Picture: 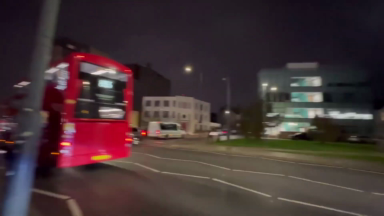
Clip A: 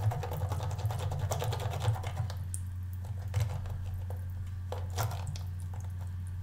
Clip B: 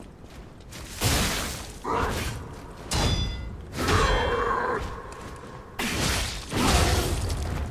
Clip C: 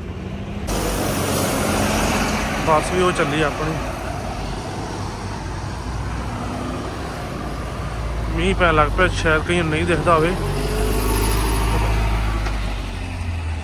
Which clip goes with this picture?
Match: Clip C